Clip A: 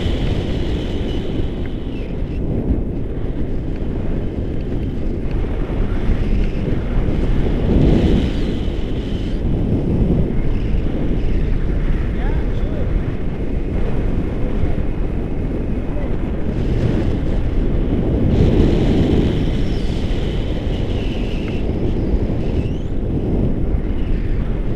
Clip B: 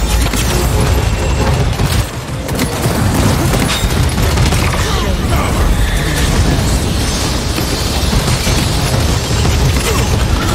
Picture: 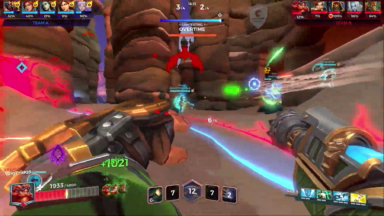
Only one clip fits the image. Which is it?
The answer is B